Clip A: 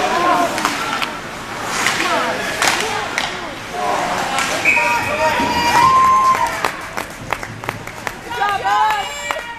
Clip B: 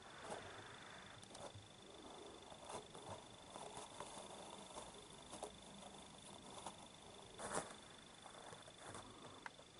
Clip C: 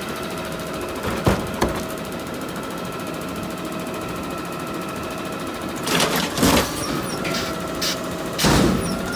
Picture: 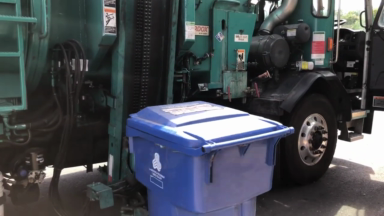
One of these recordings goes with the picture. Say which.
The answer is C